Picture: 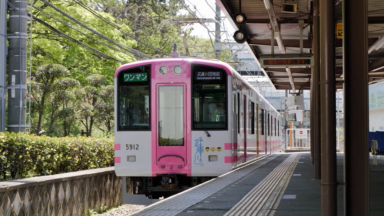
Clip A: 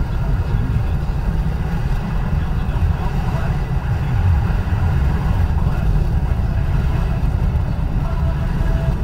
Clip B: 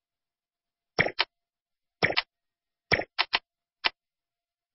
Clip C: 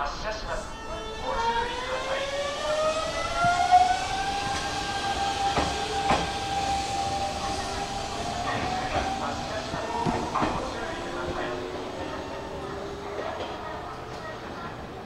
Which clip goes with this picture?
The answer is C